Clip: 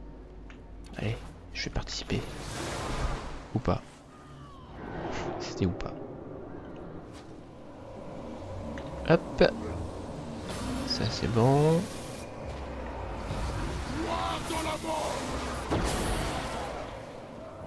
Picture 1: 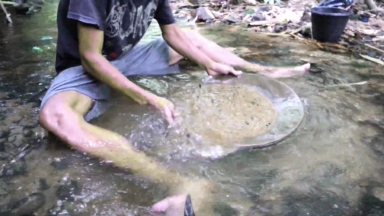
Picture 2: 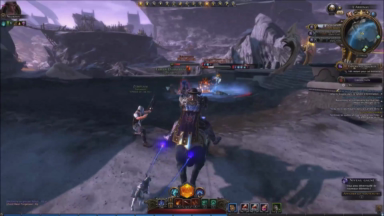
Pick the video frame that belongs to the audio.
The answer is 2